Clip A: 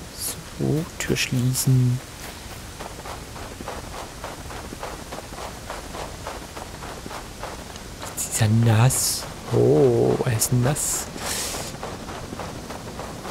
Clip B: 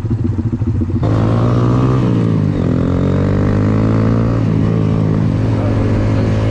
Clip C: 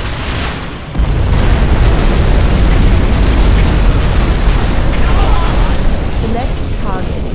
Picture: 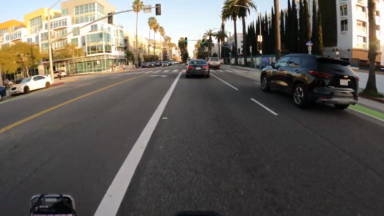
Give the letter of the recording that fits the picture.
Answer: B